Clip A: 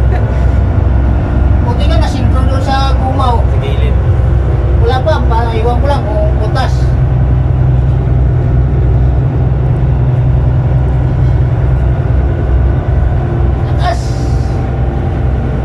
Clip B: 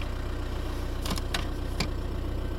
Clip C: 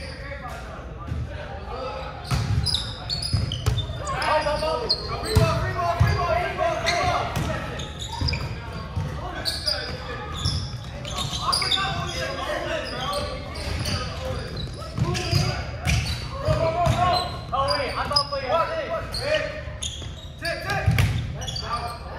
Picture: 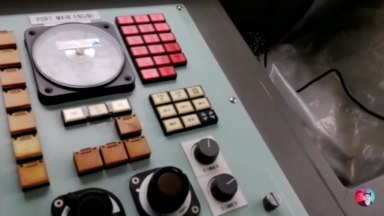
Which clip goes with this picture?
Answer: A